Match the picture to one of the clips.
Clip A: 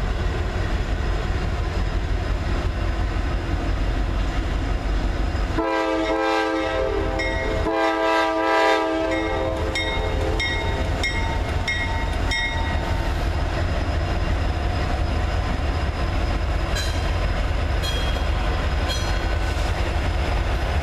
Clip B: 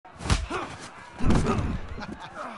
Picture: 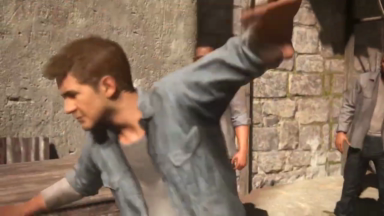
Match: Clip B